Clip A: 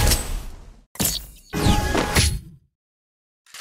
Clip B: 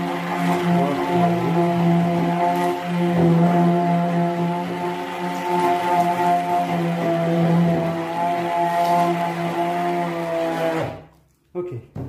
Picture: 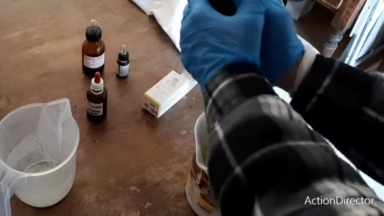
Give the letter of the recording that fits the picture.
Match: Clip B